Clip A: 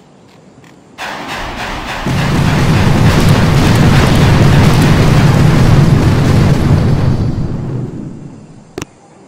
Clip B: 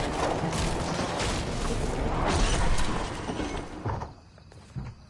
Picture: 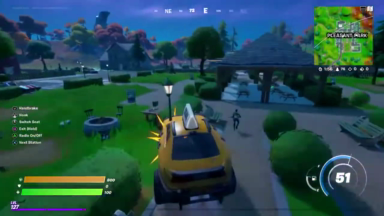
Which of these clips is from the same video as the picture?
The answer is B